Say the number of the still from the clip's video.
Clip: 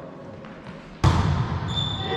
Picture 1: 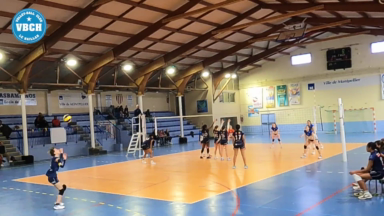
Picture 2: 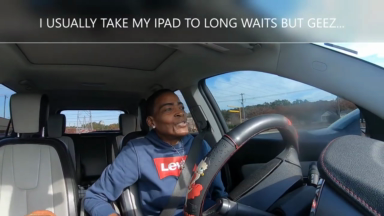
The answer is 1